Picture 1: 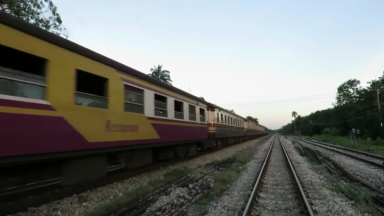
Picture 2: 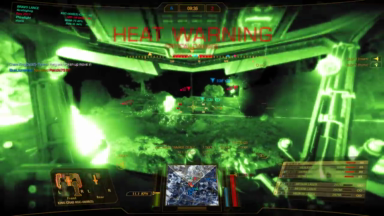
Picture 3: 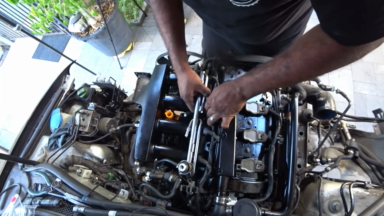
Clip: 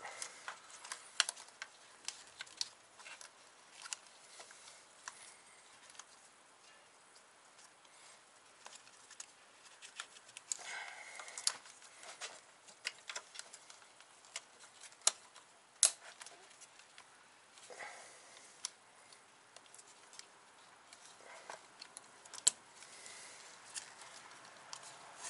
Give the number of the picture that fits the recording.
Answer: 3